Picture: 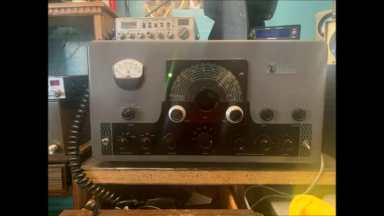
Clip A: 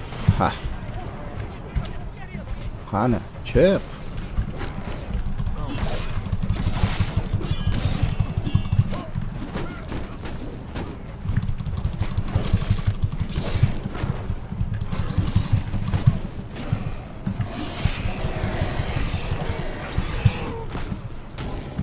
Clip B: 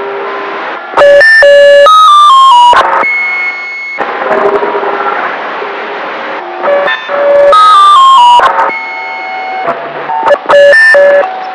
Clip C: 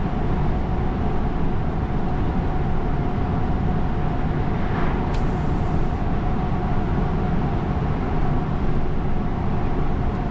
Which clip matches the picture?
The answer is B